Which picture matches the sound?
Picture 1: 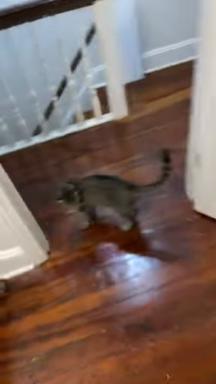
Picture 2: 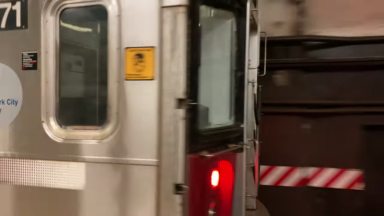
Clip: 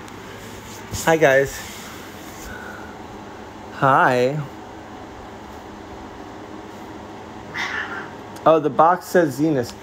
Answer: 1